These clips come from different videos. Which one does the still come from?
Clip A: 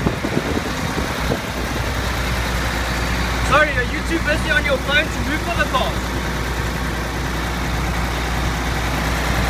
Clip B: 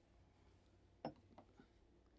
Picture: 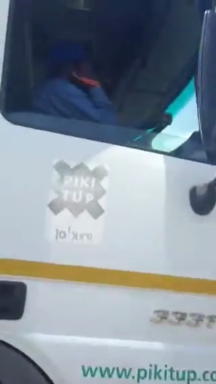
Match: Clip A